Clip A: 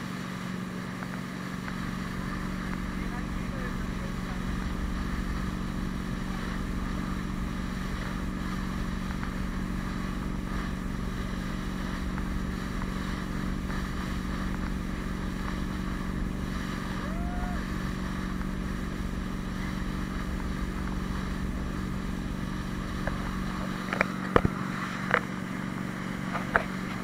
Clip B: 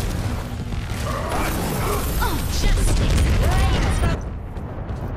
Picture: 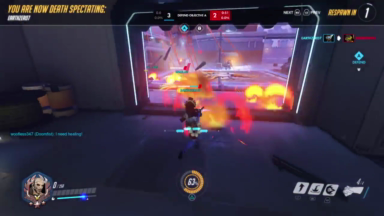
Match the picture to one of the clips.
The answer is B